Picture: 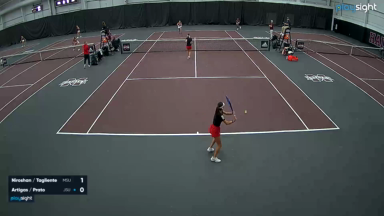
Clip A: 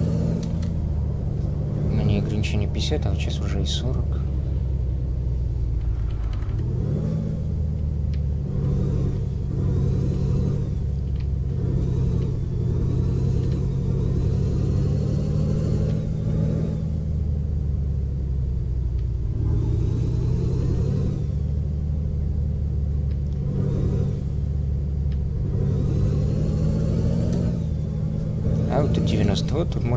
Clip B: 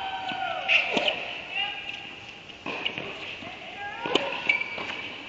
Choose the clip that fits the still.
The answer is B